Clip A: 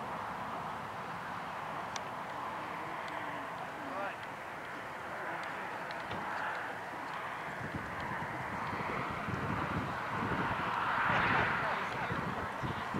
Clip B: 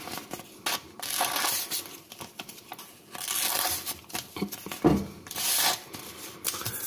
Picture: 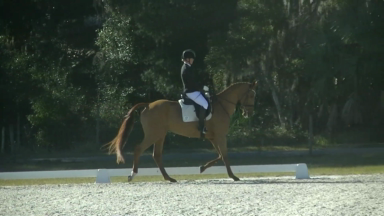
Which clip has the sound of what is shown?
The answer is A